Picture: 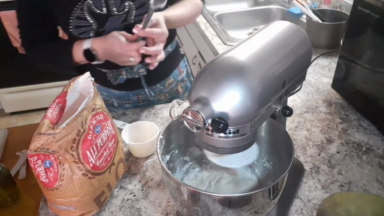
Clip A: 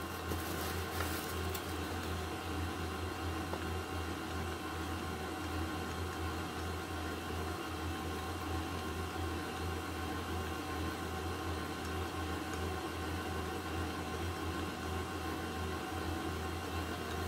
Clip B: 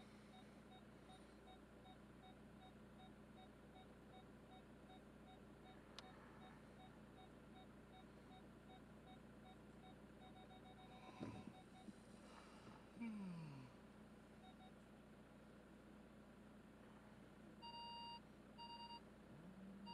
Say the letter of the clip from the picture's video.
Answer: A